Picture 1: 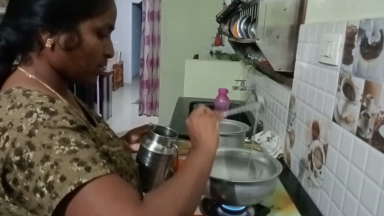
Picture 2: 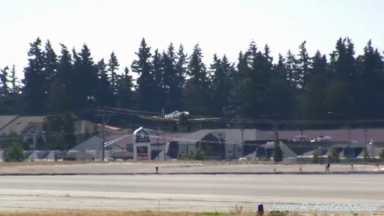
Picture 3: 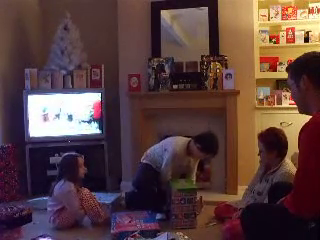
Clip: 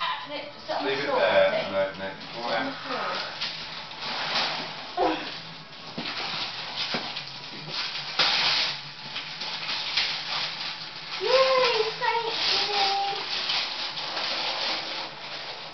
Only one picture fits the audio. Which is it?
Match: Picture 3